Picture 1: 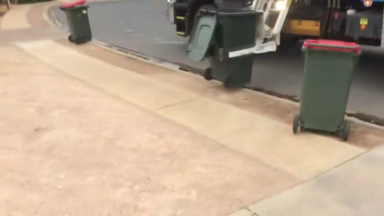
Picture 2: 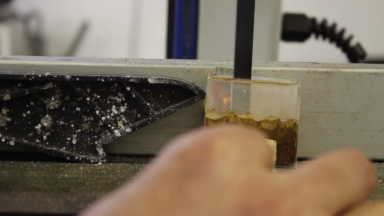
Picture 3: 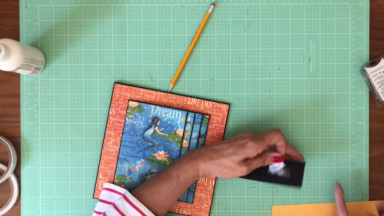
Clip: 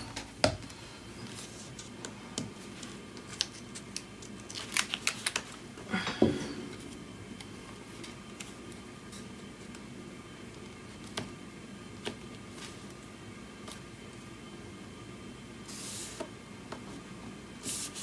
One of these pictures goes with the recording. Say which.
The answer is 3